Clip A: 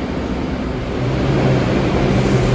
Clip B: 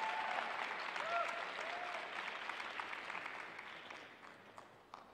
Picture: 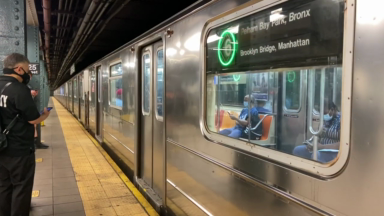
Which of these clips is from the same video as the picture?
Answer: A